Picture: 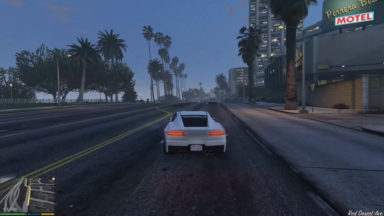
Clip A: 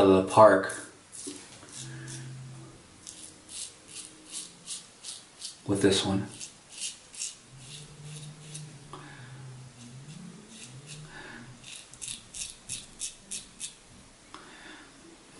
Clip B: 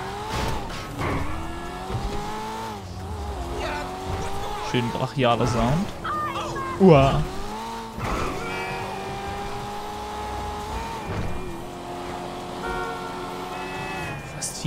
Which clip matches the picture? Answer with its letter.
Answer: B